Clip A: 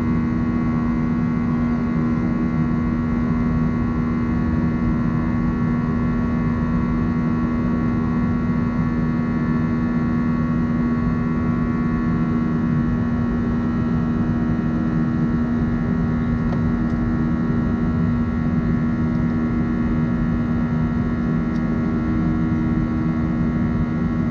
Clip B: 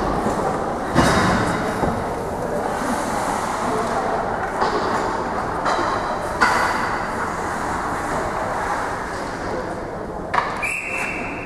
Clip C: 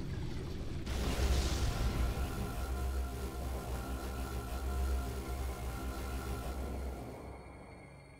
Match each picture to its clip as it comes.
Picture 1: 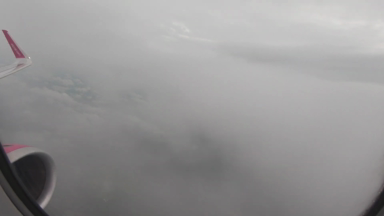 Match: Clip A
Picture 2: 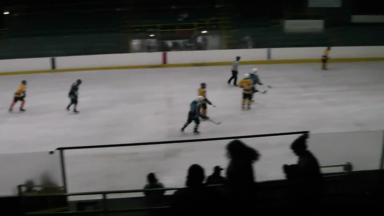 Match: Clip B